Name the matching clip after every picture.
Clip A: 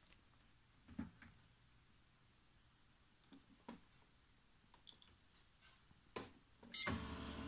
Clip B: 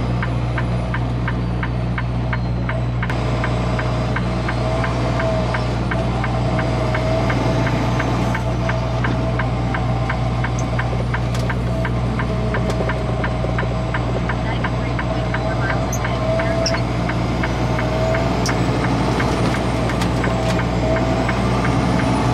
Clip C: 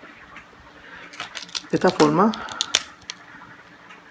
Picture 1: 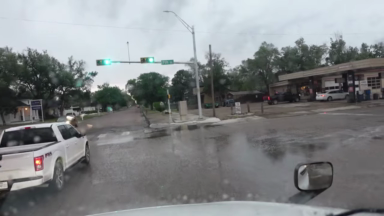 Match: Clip B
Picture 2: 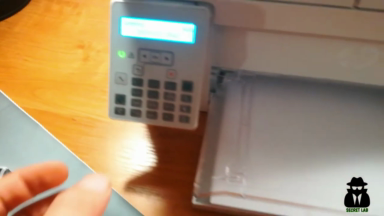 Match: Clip A